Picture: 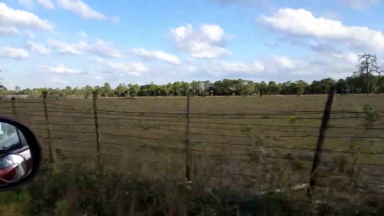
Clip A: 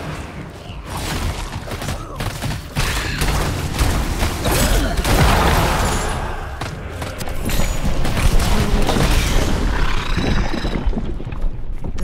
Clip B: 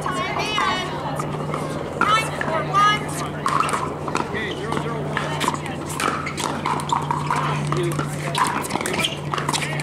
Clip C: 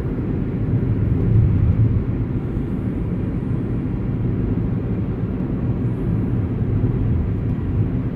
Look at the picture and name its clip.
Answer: C